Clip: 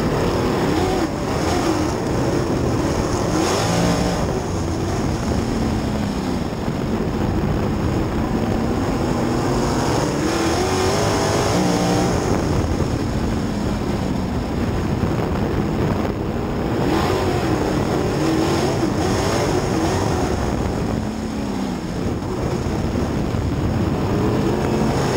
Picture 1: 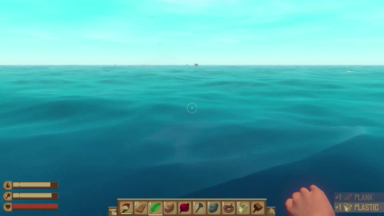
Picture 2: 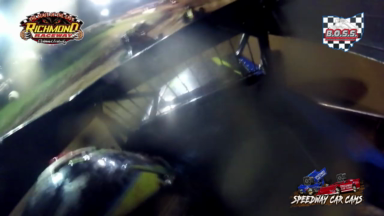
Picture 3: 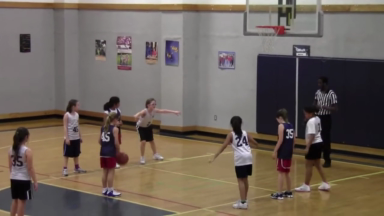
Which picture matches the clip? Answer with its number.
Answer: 2